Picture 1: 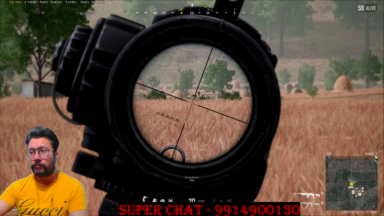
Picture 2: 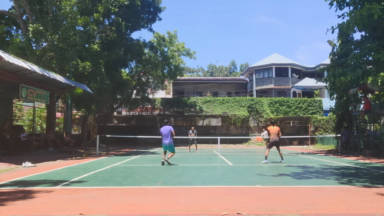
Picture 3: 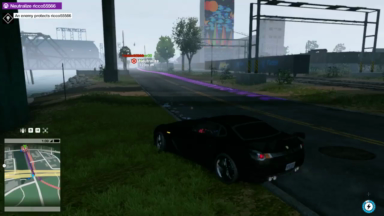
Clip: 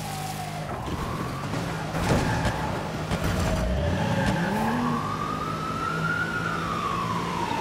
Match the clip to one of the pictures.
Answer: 3